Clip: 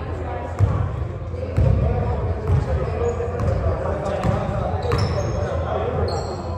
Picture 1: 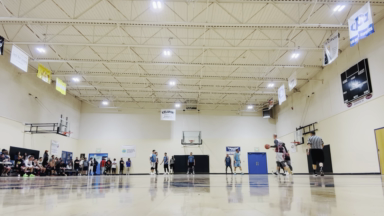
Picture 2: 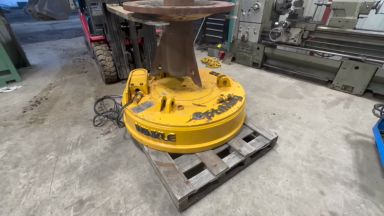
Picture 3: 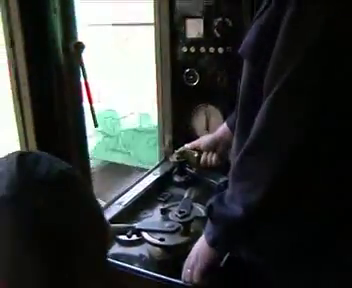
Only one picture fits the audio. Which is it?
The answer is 1